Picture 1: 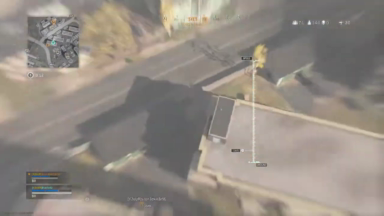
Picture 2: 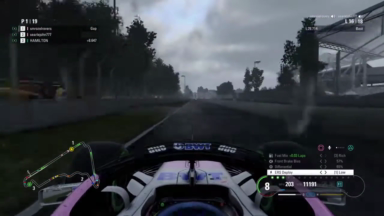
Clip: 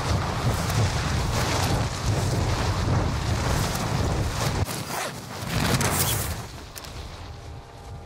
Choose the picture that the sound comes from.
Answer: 1